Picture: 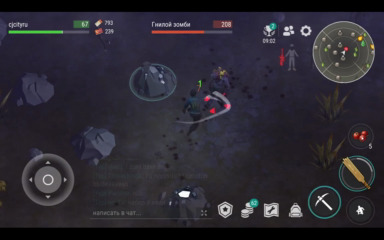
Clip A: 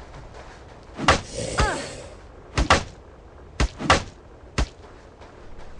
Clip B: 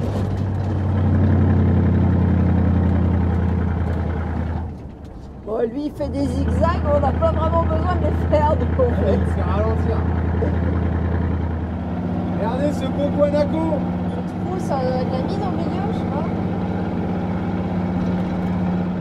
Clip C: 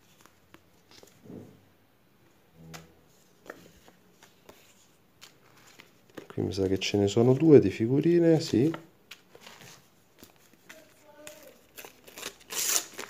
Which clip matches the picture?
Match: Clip A